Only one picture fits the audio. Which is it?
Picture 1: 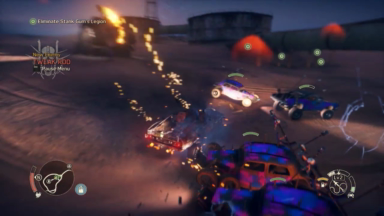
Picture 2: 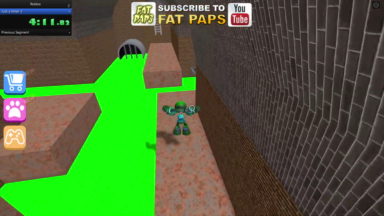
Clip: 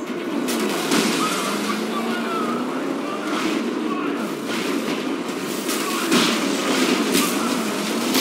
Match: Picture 1